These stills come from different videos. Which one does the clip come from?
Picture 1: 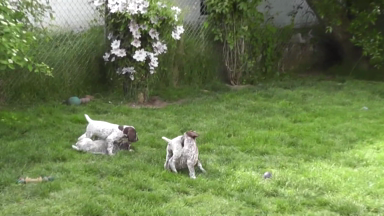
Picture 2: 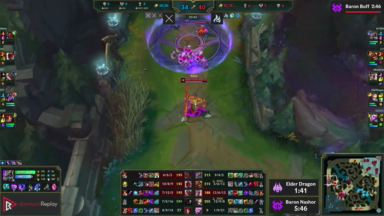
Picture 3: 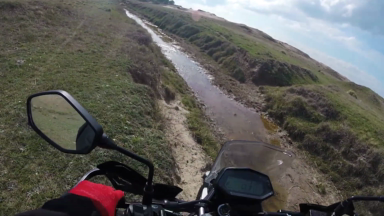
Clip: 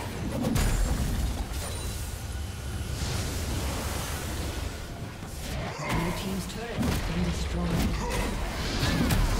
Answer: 2